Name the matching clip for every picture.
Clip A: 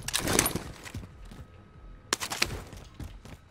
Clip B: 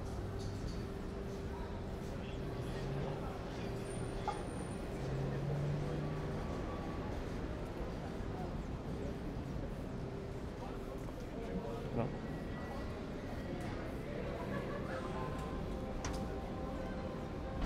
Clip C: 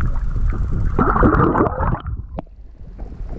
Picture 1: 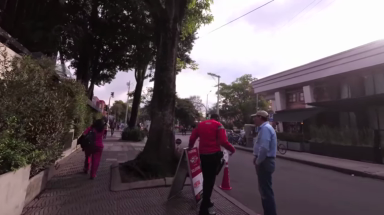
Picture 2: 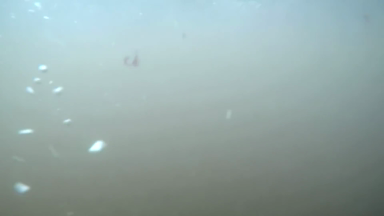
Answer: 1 B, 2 C